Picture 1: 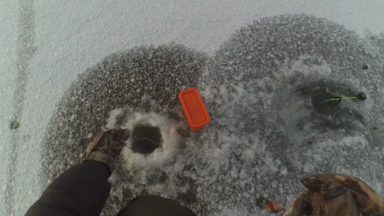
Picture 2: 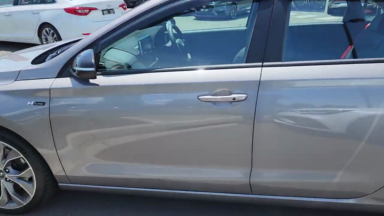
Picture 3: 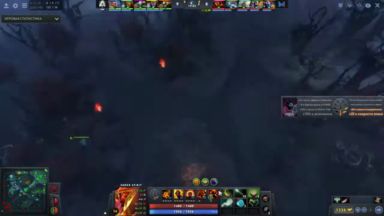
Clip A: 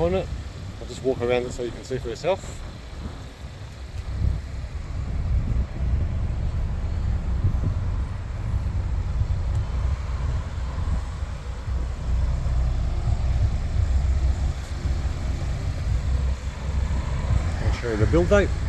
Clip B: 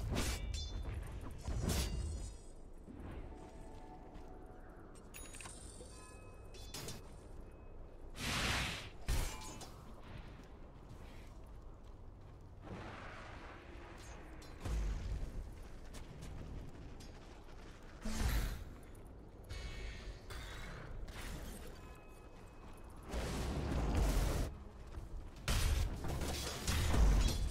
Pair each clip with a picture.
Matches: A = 2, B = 3